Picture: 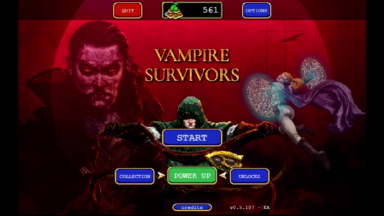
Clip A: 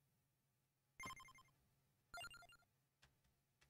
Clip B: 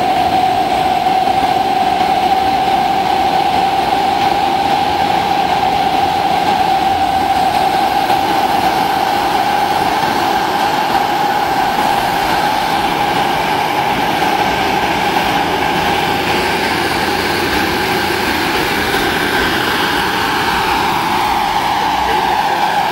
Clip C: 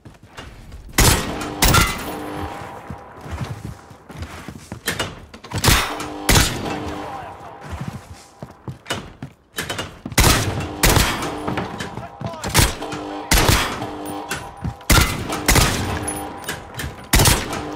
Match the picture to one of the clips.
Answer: A